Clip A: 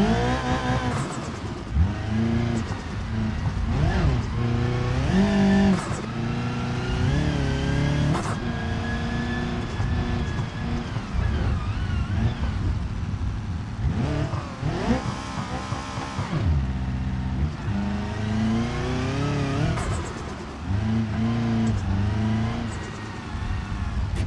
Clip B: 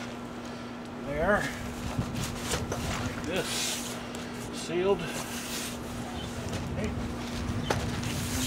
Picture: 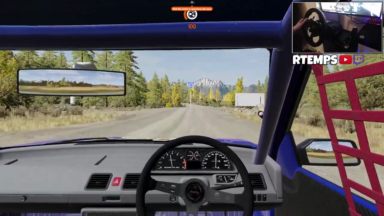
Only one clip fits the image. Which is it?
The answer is A